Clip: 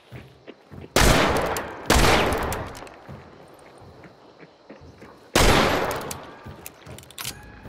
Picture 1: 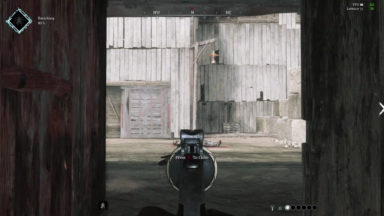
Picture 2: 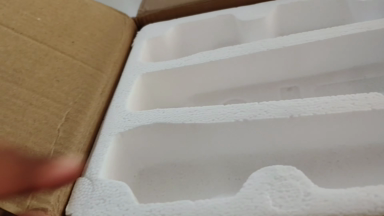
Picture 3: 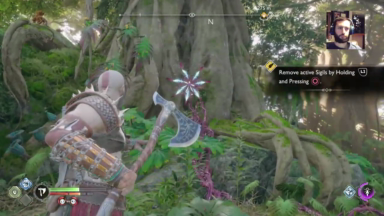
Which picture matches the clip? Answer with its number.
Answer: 1